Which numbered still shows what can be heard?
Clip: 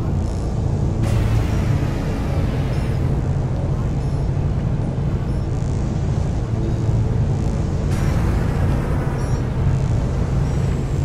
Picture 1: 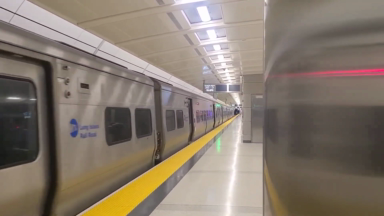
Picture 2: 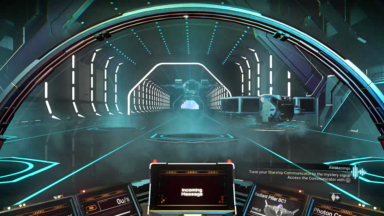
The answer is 2